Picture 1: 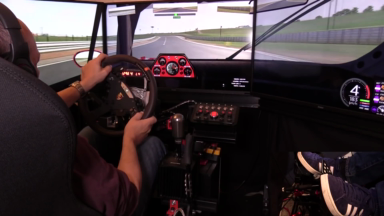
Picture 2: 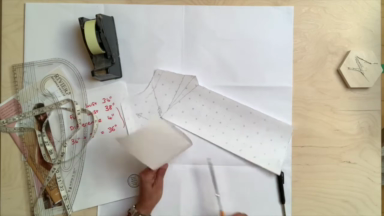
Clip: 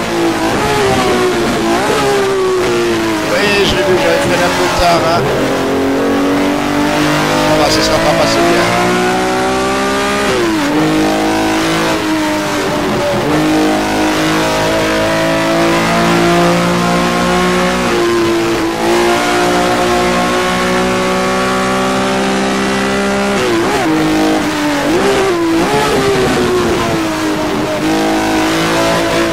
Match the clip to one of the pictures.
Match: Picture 1